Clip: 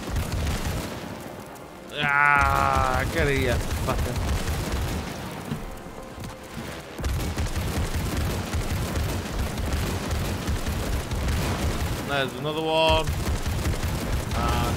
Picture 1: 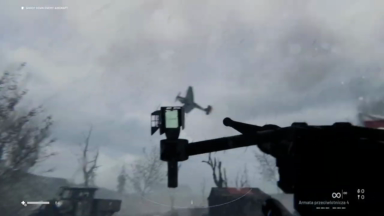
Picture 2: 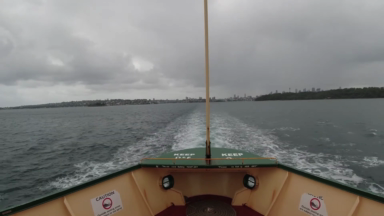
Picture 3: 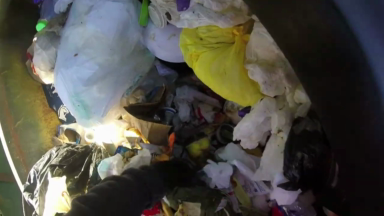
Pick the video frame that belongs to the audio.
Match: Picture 1